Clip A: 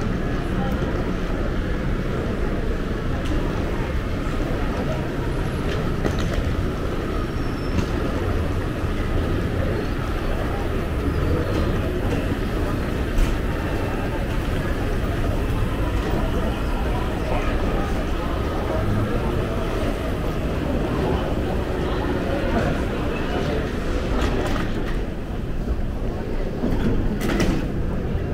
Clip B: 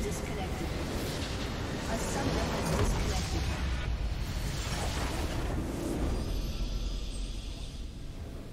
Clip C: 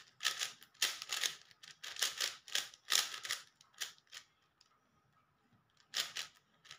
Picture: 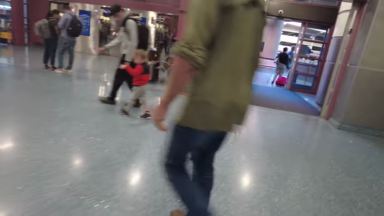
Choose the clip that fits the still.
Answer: A